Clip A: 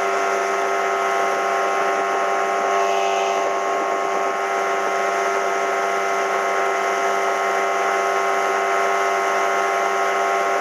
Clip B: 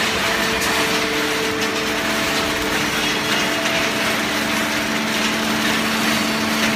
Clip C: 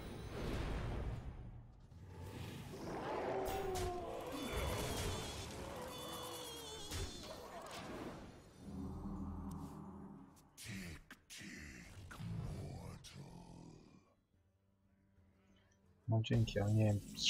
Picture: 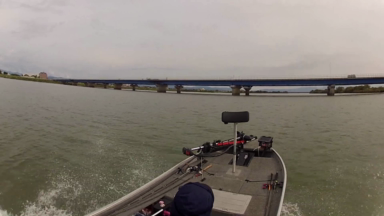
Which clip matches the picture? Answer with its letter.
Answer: A